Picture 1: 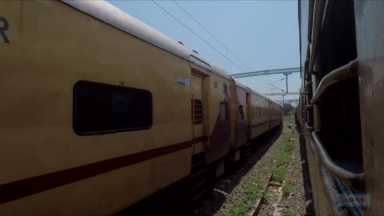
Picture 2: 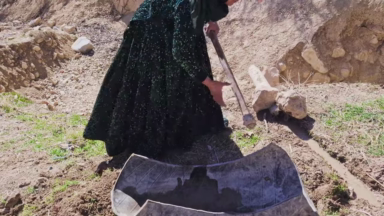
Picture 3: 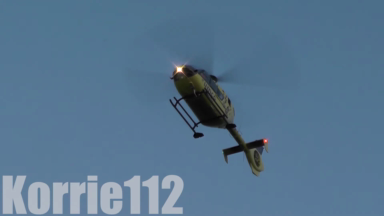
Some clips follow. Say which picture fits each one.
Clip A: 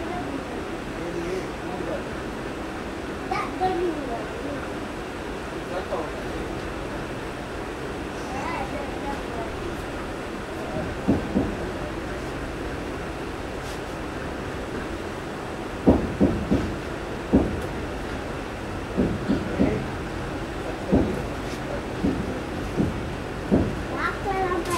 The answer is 1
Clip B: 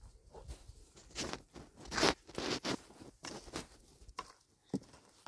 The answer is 2